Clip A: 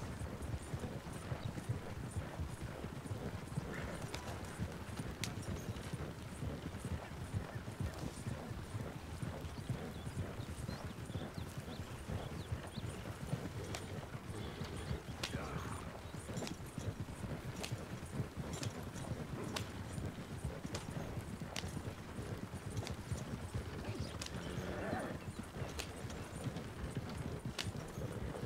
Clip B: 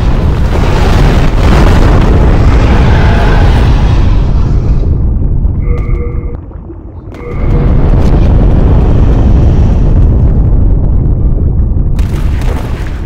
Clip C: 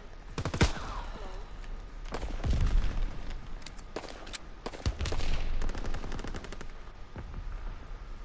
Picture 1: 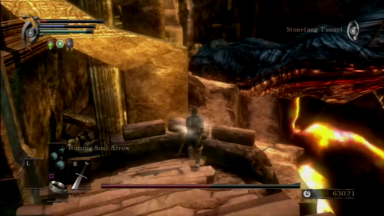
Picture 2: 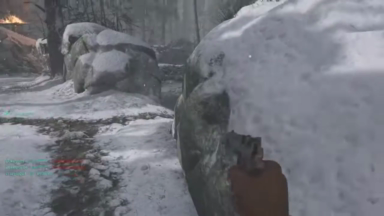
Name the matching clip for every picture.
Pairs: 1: B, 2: C